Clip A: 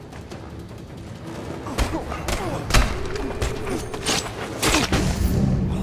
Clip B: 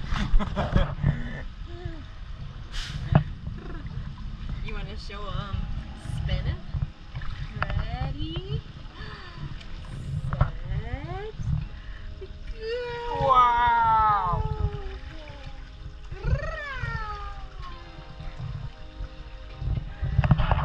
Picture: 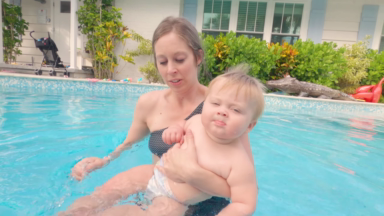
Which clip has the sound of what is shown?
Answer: B